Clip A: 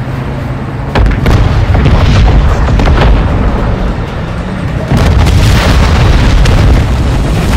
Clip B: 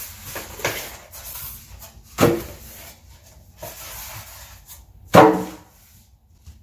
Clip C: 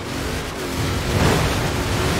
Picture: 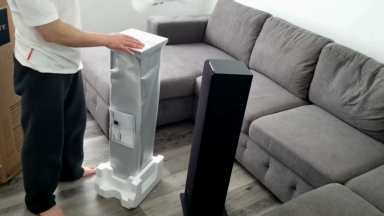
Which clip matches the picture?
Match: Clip B